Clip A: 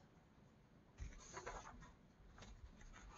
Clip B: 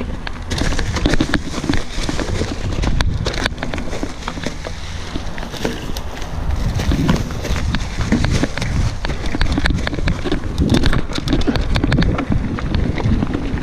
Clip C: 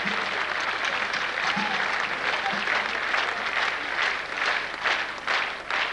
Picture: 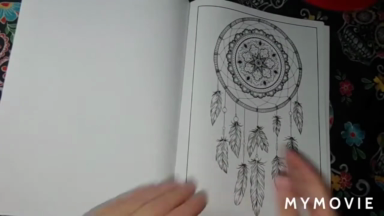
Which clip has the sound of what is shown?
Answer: A